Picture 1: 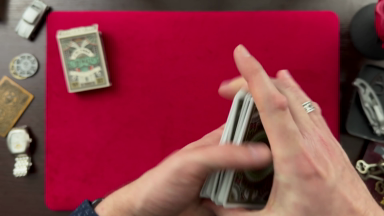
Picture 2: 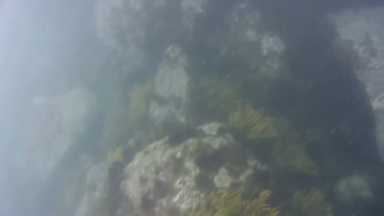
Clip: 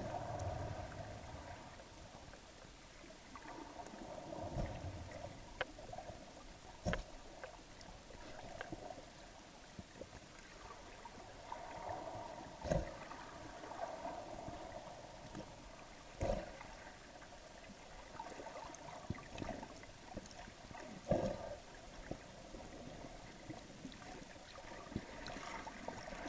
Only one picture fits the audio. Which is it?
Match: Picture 2